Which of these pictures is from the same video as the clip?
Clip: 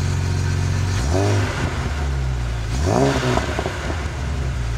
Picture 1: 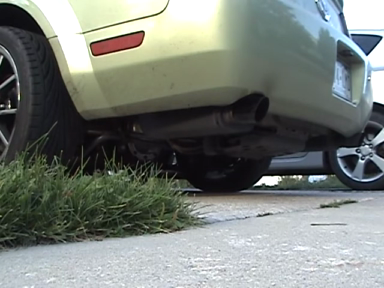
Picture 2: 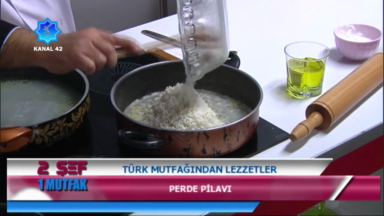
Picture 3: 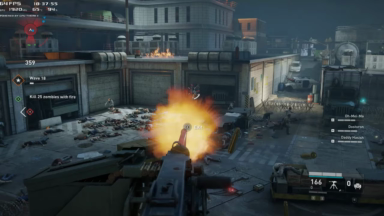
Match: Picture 1